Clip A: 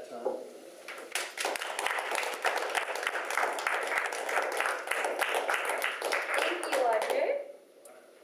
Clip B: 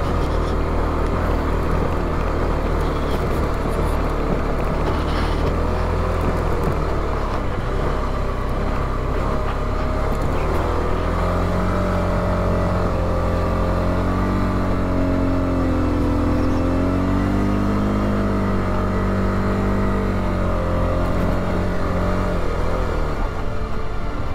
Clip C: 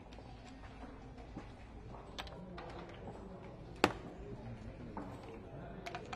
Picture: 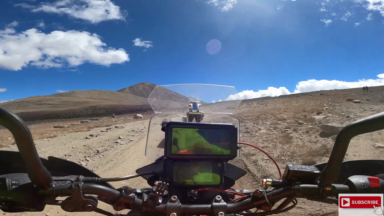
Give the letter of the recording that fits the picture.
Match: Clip B